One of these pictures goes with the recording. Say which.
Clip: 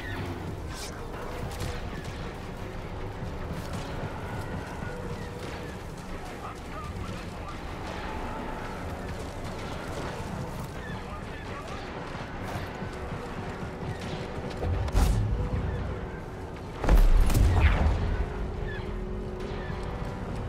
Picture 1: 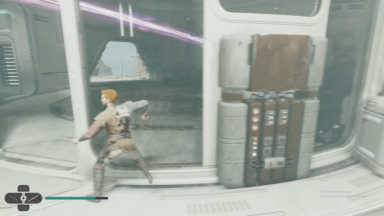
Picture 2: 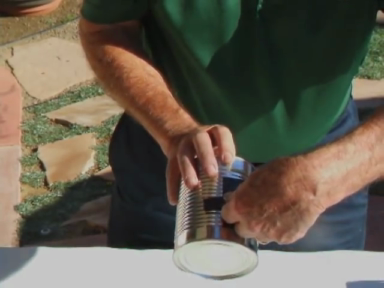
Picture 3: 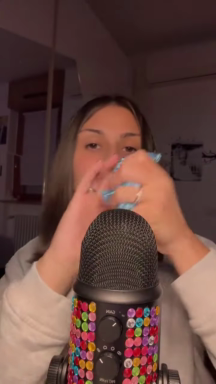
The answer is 1